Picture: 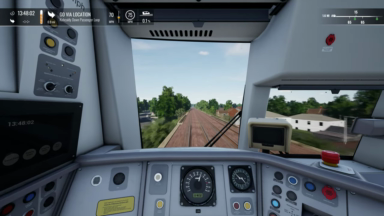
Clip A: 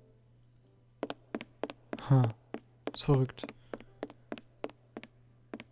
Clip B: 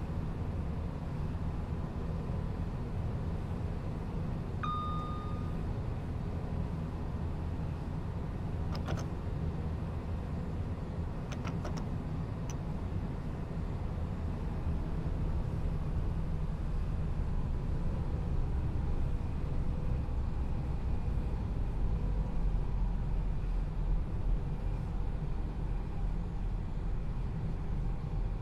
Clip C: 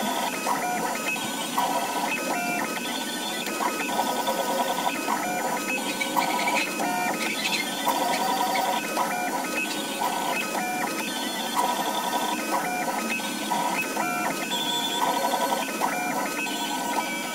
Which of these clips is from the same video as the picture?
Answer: B